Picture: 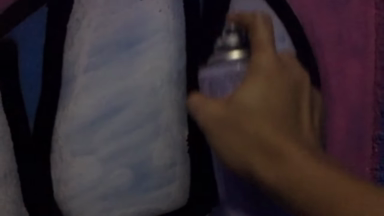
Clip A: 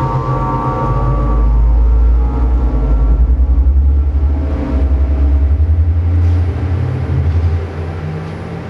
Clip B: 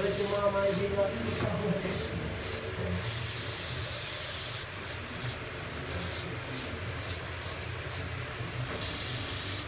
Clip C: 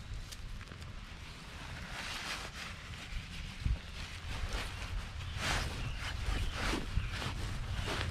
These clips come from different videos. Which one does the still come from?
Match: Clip B